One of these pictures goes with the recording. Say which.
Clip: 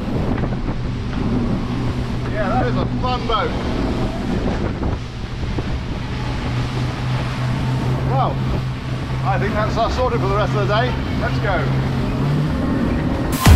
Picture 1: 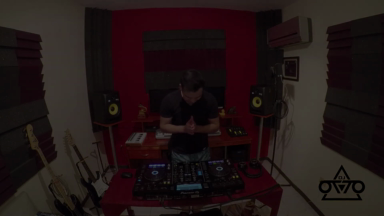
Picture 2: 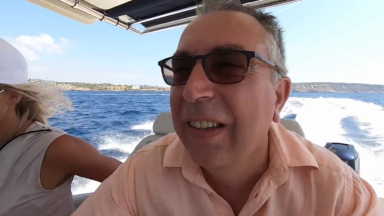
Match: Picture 2